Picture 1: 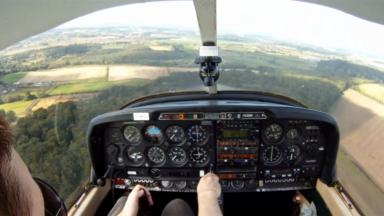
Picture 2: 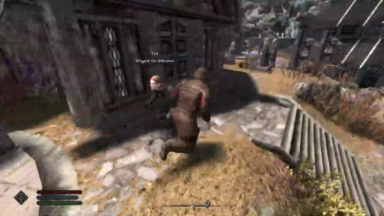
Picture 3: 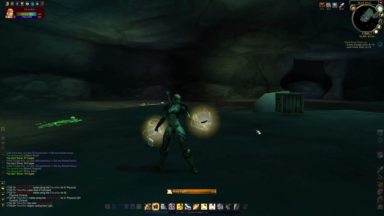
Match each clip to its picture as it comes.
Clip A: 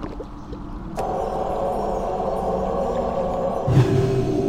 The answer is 3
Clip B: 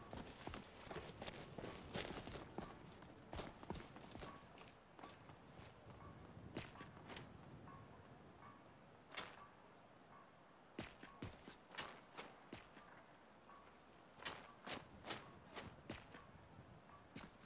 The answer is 2